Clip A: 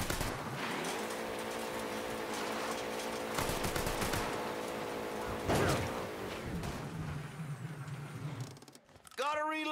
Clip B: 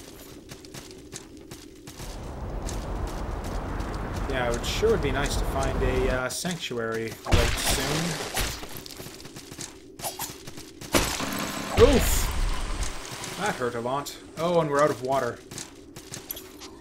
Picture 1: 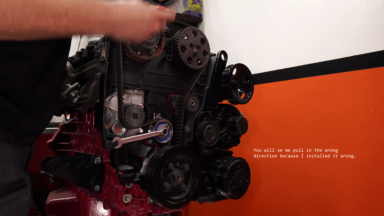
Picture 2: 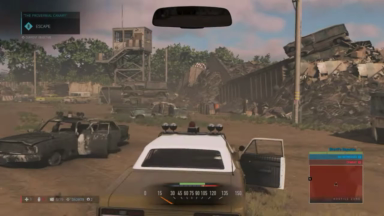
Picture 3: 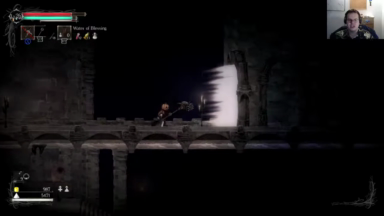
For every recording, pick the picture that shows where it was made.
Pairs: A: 2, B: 3